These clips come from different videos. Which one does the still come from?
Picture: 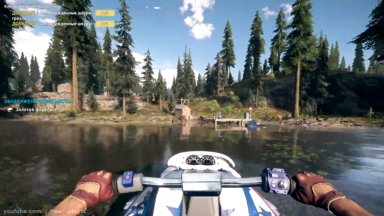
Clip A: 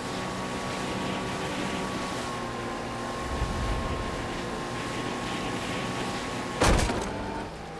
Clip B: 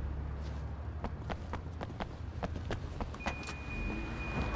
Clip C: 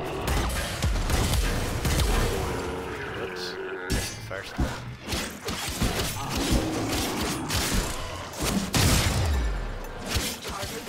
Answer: A